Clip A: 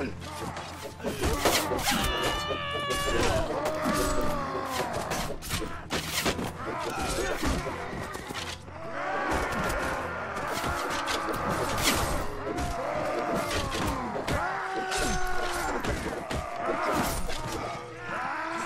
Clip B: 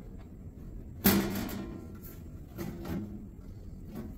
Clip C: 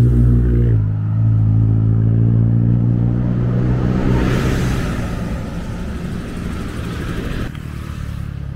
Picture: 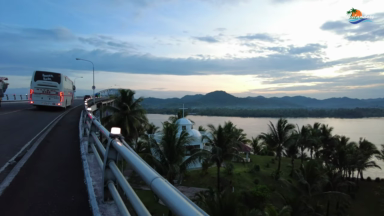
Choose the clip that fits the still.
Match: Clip C